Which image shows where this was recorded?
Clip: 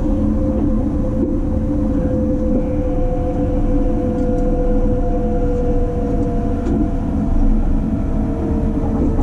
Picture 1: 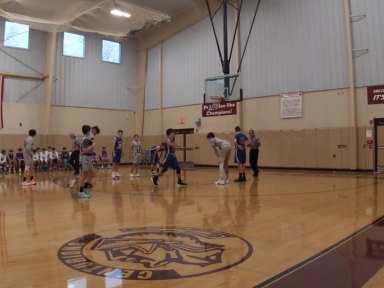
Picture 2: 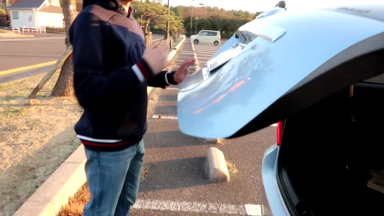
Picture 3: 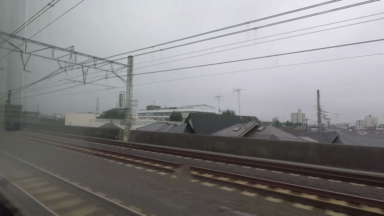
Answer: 3